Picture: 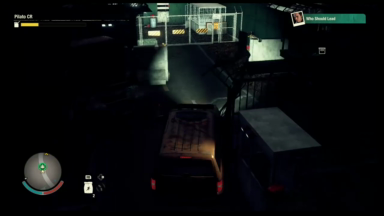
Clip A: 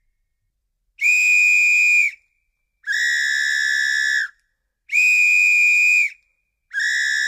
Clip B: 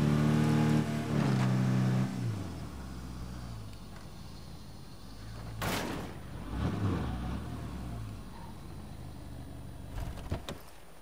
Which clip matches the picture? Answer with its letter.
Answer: B